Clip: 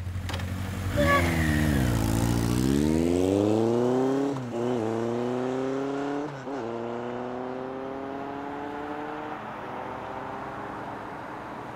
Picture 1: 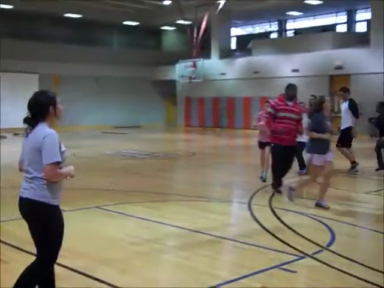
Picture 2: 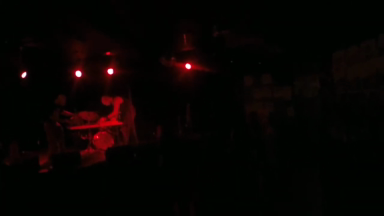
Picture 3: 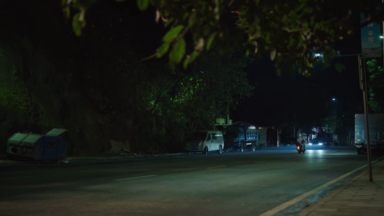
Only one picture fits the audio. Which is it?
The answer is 3